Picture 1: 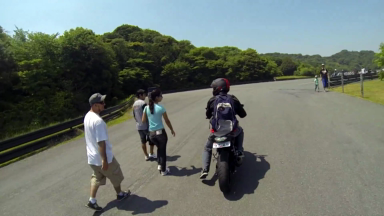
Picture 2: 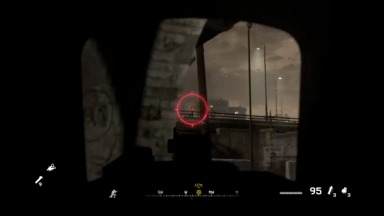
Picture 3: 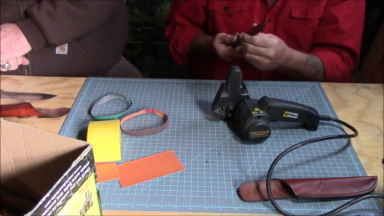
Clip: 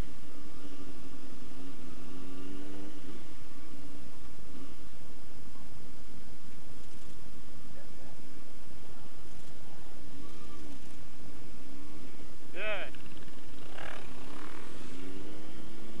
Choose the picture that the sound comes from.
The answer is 1